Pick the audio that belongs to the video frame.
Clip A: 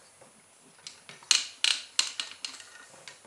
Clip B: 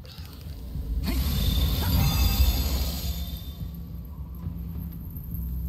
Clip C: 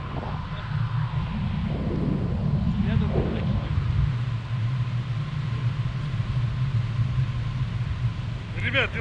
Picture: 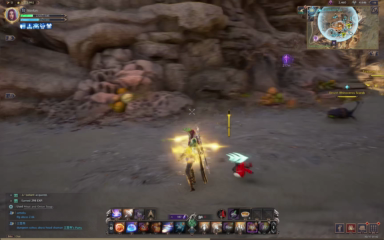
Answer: B